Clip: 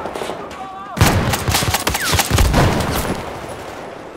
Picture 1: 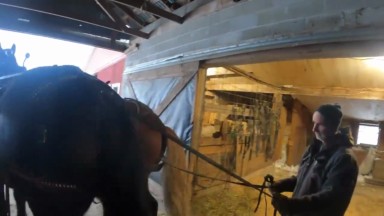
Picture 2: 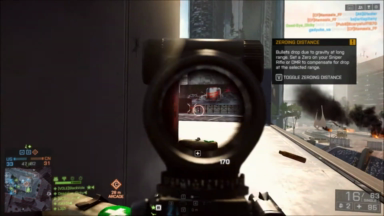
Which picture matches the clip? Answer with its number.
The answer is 2